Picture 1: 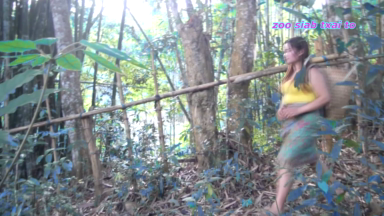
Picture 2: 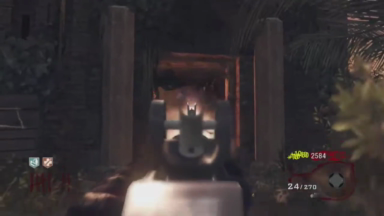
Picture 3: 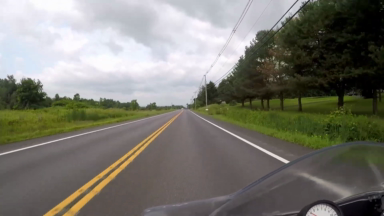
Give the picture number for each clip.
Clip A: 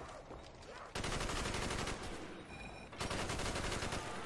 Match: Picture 2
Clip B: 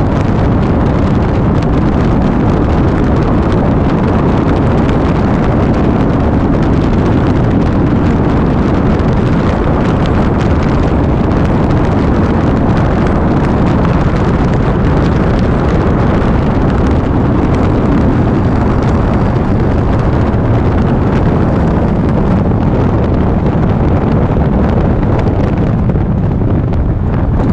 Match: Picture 3